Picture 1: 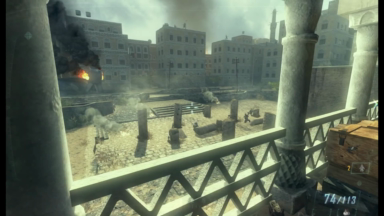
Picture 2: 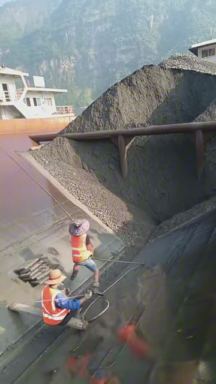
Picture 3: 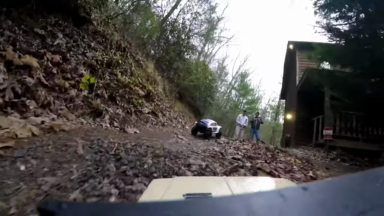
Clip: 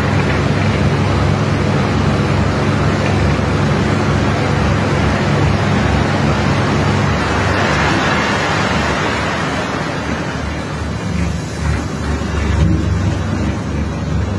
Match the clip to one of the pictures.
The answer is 2